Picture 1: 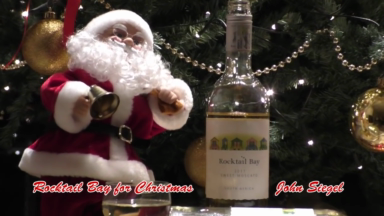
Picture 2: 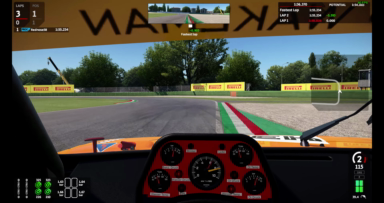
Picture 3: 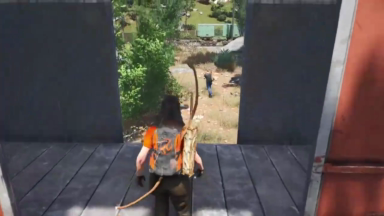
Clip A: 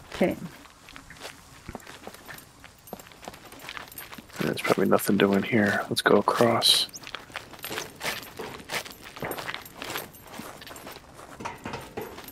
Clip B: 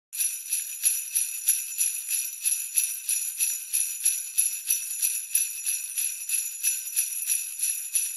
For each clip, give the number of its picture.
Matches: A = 3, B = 1